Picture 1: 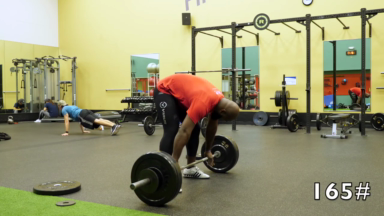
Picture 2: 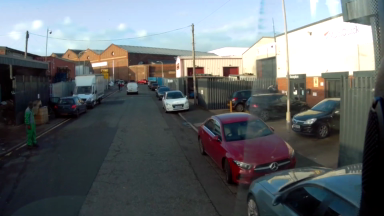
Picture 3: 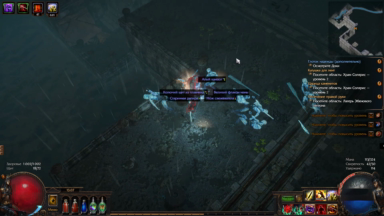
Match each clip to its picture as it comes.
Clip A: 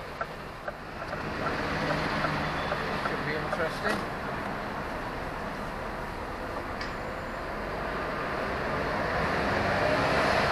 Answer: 2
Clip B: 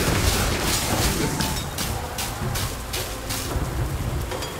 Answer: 3